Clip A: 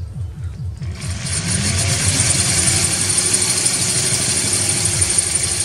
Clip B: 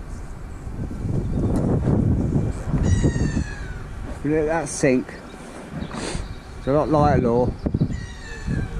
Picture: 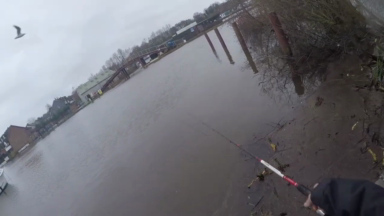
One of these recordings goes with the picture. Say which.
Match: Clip B